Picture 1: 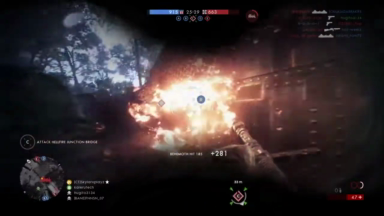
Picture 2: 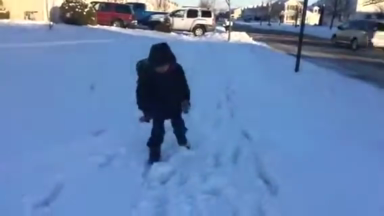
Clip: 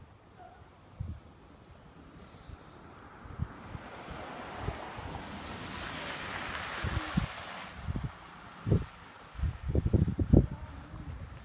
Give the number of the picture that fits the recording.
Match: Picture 2